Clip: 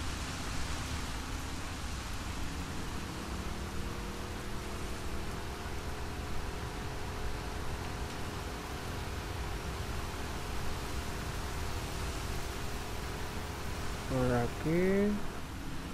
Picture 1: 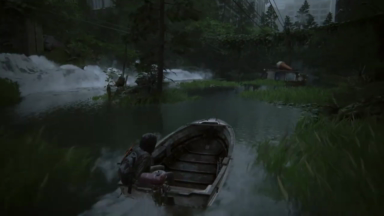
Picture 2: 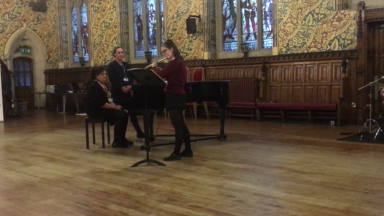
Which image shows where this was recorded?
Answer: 1